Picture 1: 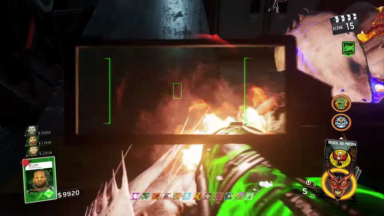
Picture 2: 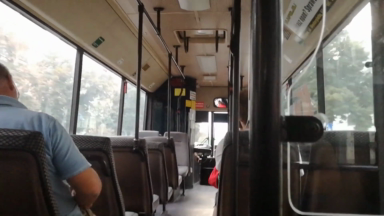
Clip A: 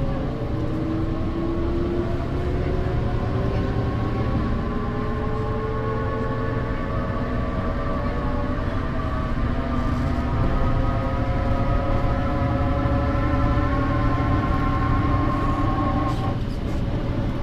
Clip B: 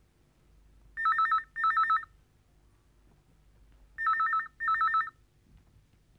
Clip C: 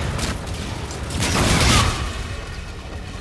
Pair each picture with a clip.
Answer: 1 C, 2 A